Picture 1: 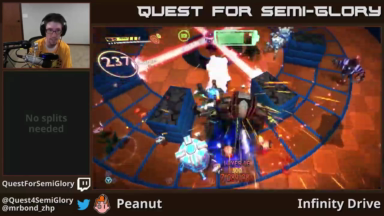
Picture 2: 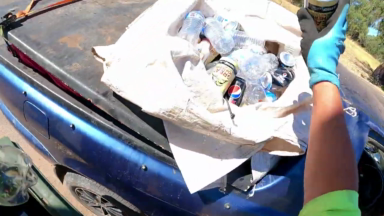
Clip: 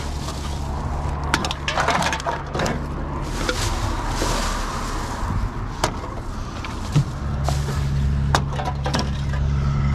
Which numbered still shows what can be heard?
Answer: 2